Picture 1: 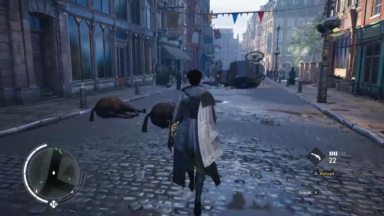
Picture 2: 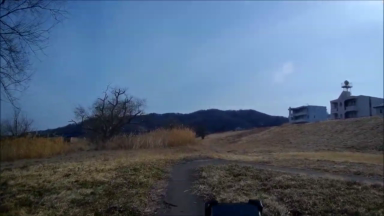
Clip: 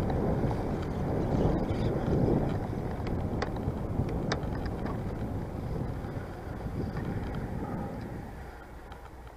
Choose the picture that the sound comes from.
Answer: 2